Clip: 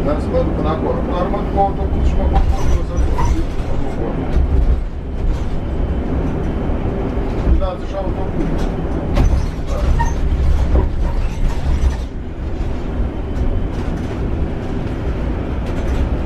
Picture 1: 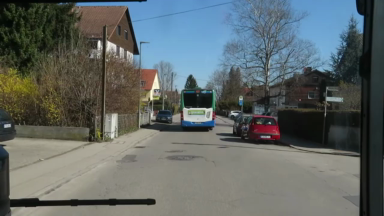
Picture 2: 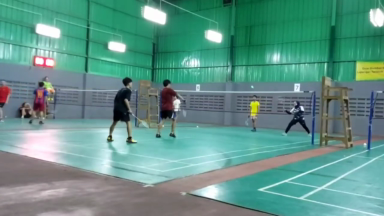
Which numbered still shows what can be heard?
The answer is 1